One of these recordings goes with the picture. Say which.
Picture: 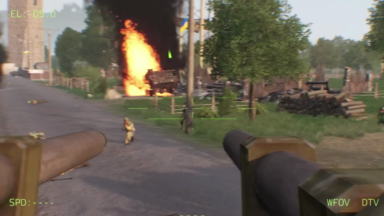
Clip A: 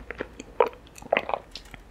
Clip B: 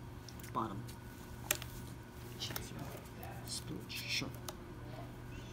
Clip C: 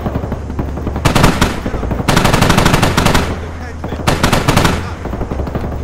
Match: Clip C